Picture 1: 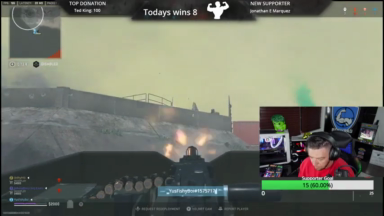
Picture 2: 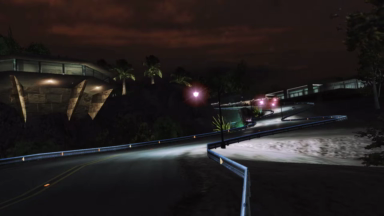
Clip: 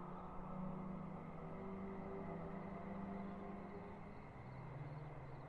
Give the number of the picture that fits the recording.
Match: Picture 2